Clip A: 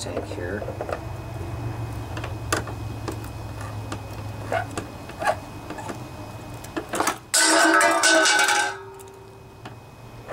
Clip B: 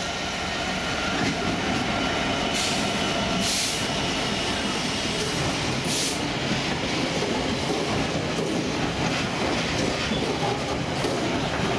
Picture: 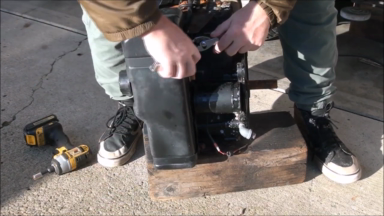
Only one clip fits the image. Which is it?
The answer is A